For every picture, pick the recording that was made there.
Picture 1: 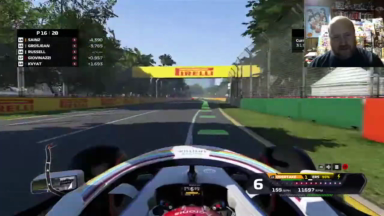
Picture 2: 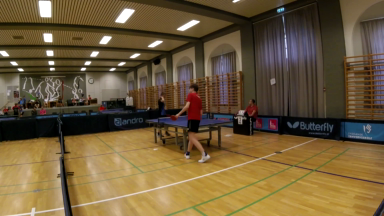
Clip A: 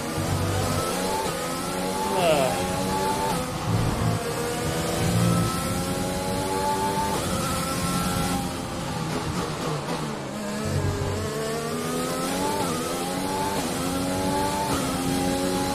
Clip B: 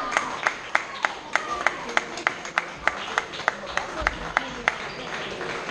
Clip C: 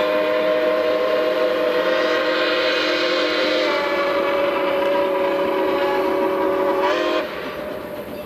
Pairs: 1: A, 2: B